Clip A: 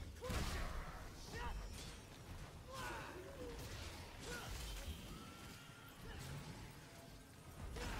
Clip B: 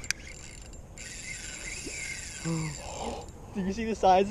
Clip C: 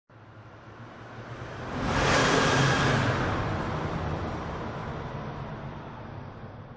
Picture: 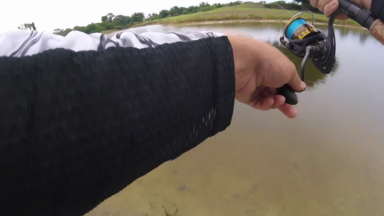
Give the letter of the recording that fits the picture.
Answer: B